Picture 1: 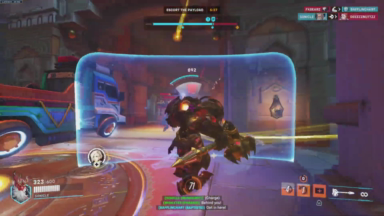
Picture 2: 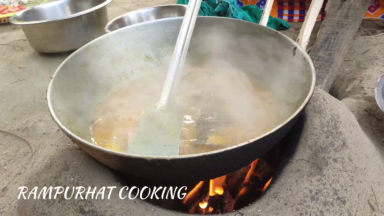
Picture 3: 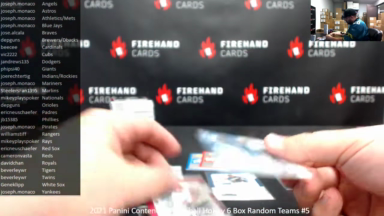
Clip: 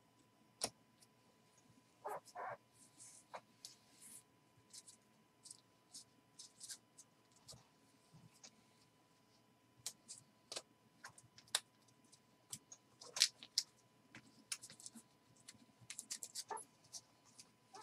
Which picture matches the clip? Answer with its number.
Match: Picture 3